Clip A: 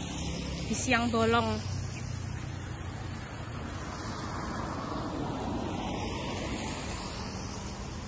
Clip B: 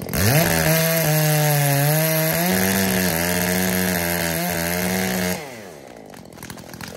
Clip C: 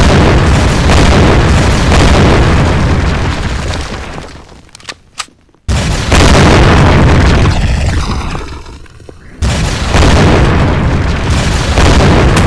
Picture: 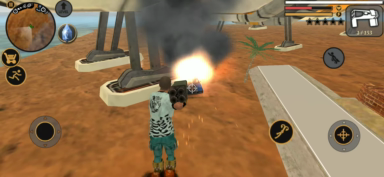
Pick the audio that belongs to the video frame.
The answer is C